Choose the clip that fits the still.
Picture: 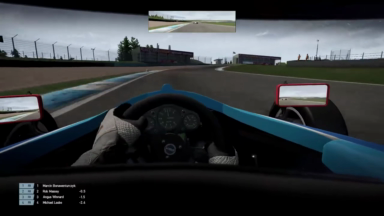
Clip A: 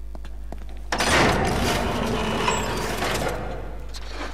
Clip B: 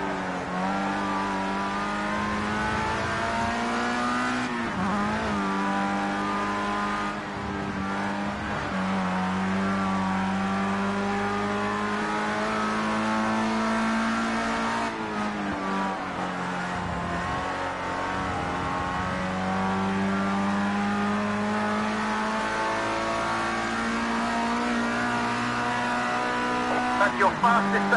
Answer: B